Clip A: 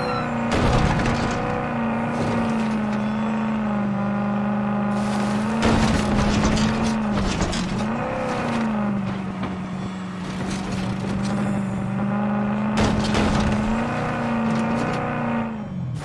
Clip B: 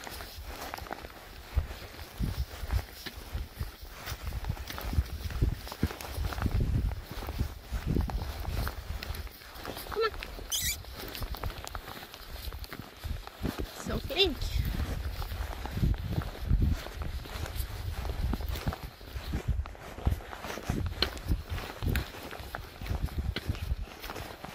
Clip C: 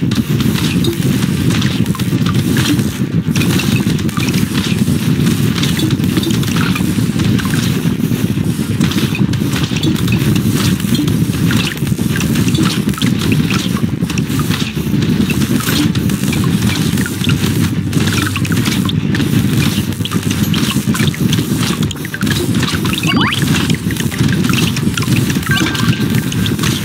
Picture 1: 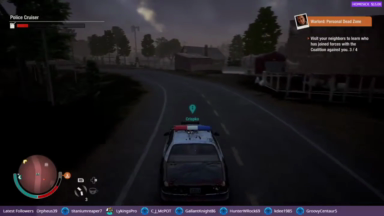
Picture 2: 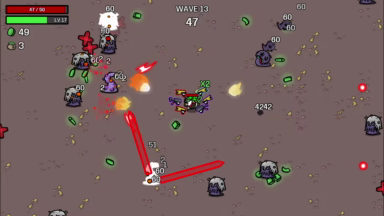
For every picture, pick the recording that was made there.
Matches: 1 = A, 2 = C